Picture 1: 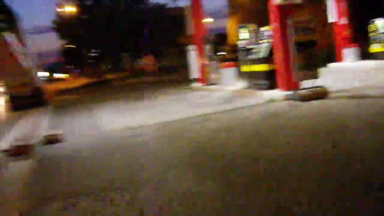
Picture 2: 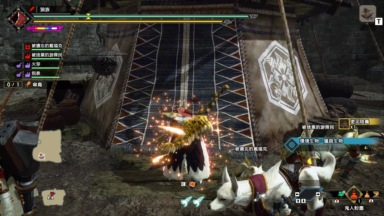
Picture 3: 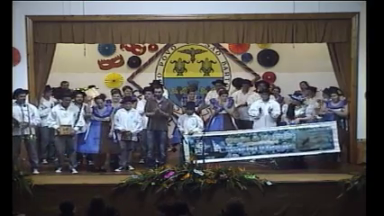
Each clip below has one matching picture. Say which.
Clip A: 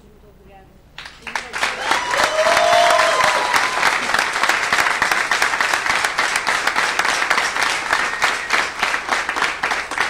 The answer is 3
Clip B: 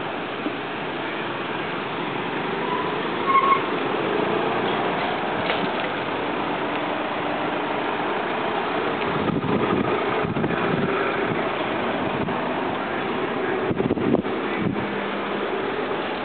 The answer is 1